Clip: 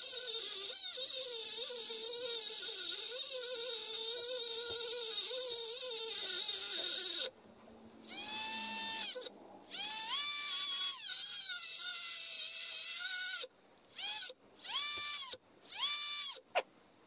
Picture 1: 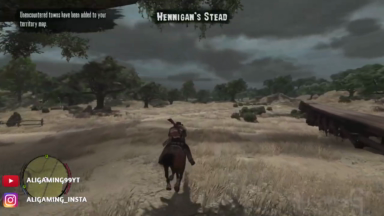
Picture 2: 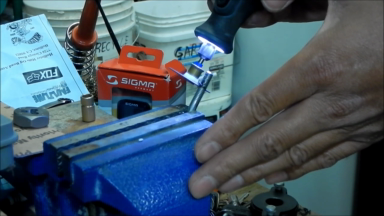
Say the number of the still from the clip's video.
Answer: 2